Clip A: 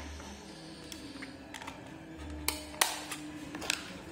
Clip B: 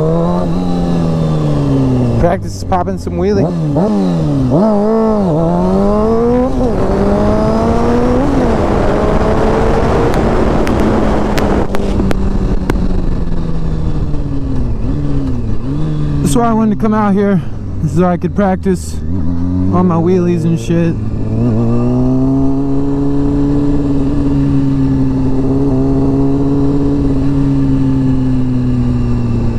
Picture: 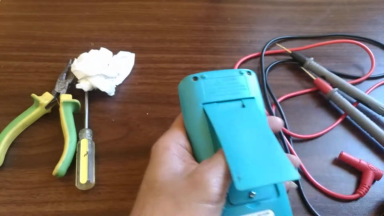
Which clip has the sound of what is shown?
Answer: A